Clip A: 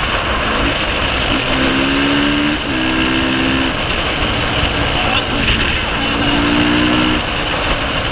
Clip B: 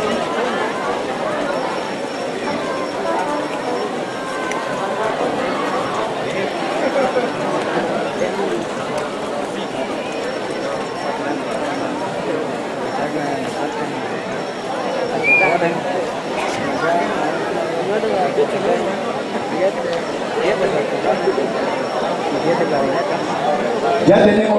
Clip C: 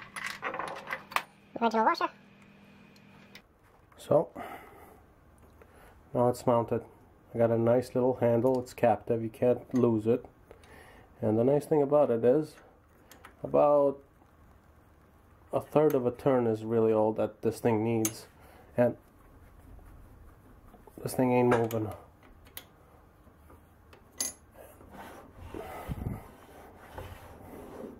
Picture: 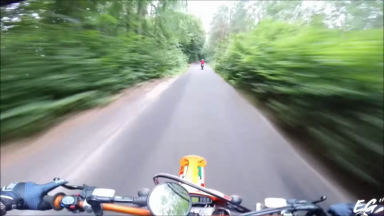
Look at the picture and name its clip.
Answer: A